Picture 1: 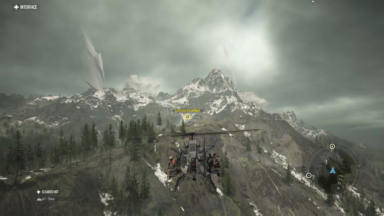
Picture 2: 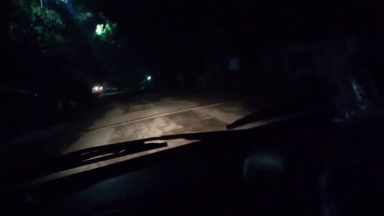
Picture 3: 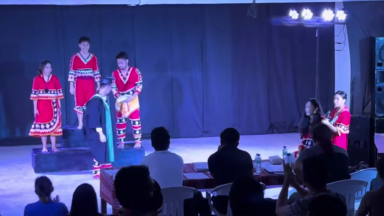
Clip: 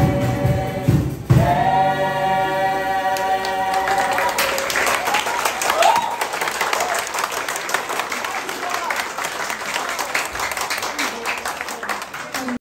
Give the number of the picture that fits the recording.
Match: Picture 3